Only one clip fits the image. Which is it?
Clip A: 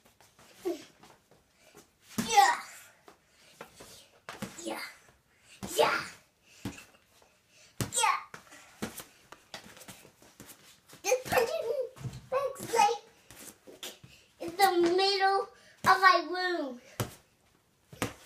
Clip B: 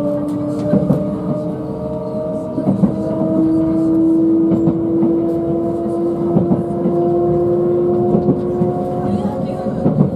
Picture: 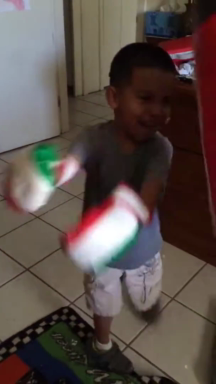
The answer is A